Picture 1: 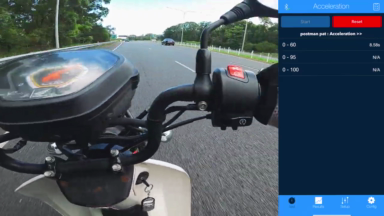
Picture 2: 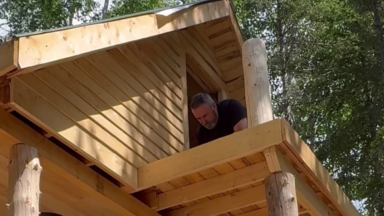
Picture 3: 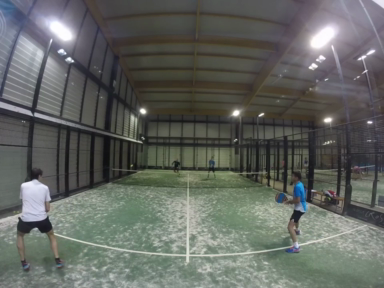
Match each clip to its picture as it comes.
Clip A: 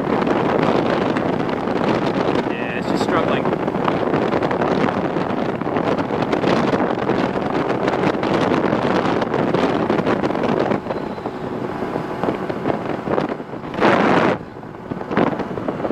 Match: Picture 1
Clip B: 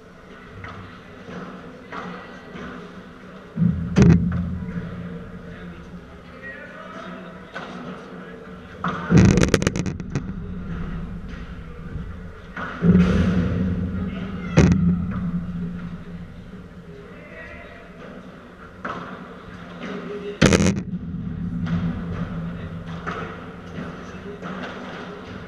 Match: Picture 3